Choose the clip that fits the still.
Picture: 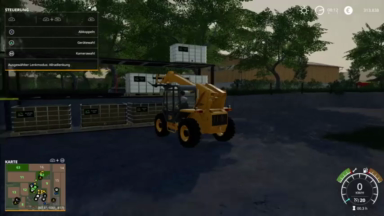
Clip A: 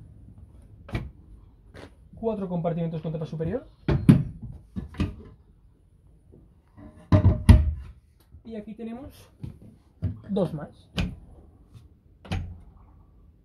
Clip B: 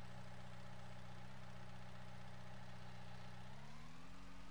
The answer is B